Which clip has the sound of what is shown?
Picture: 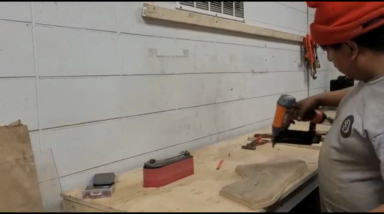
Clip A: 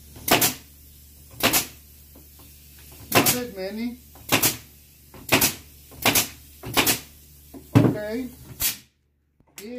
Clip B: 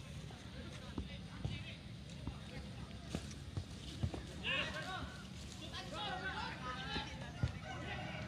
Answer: A